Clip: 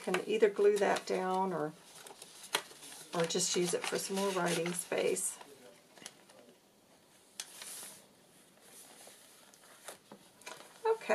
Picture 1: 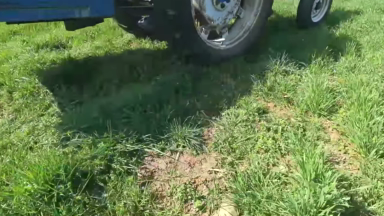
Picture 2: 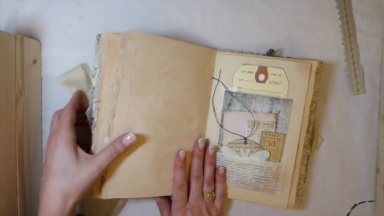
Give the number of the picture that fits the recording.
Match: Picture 2